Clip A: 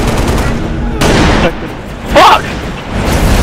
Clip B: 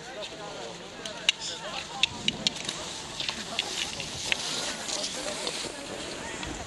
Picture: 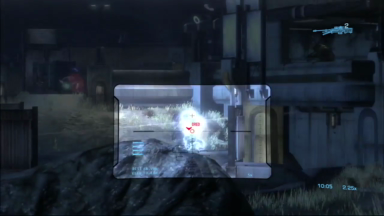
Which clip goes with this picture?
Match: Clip A